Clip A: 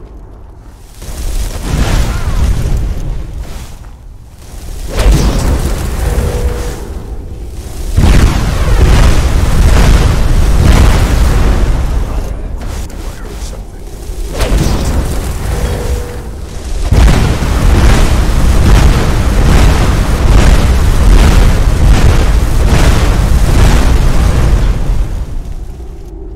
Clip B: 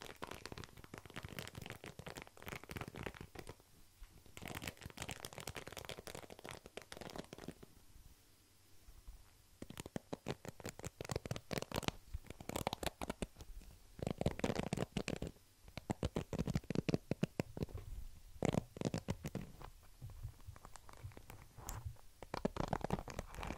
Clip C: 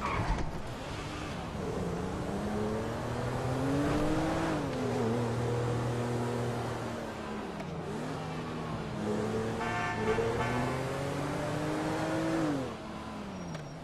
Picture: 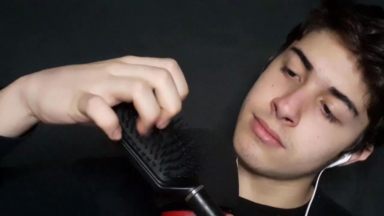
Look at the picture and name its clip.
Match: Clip B